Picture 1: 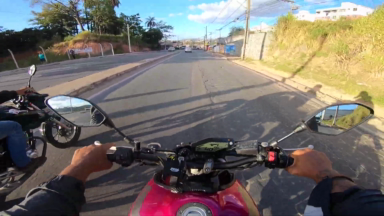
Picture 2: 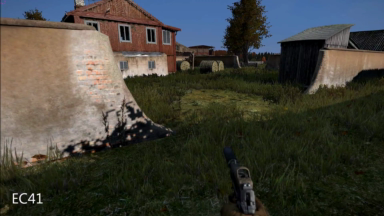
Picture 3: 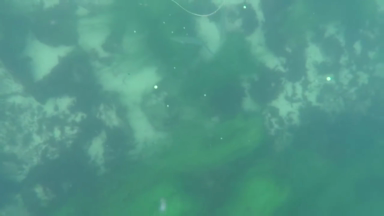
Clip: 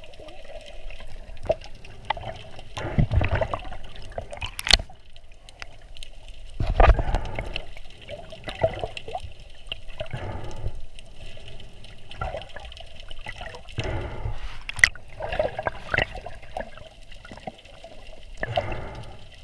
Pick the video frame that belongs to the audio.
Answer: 3